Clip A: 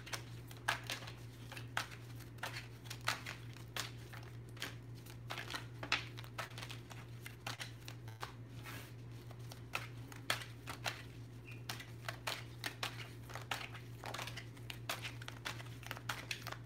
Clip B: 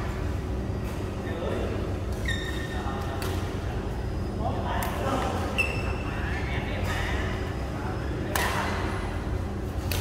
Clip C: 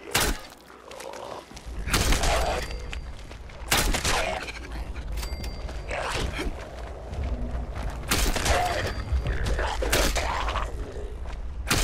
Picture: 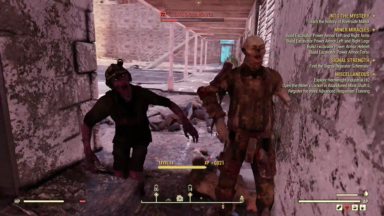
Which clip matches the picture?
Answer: C